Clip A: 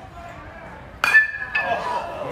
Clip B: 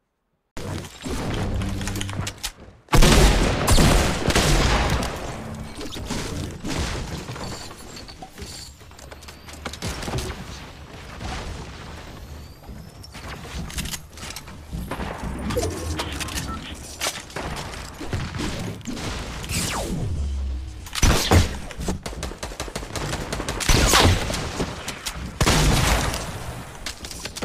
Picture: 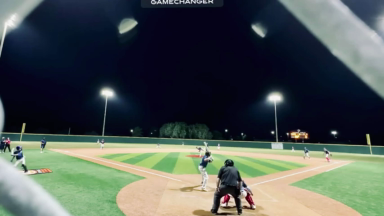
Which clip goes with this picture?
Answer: A